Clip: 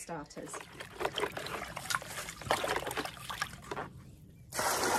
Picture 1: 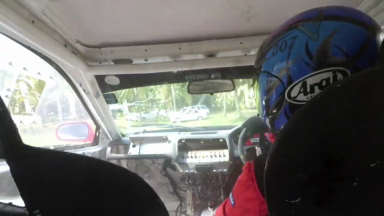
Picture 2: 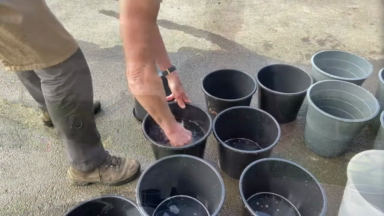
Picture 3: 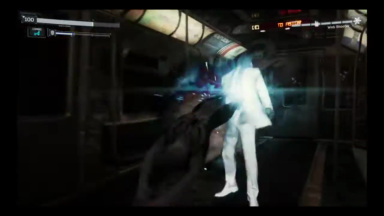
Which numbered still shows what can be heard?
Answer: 2